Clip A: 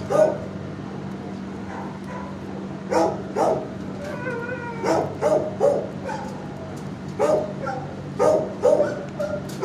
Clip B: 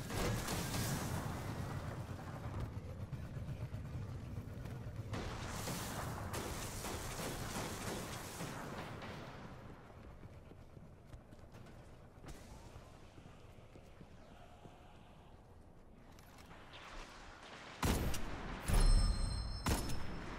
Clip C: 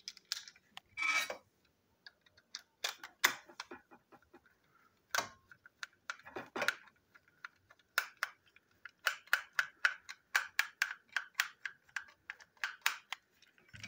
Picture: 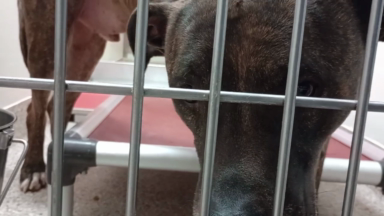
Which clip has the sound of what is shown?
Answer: A